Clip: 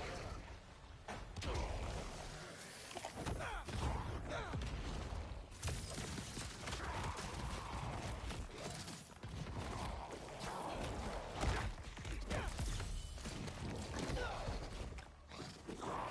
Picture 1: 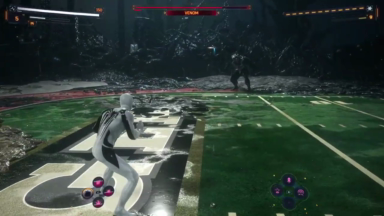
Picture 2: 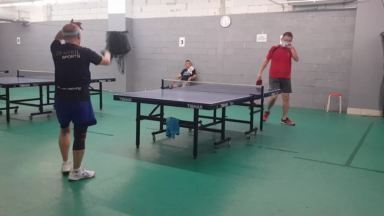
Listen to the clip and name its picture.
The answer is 1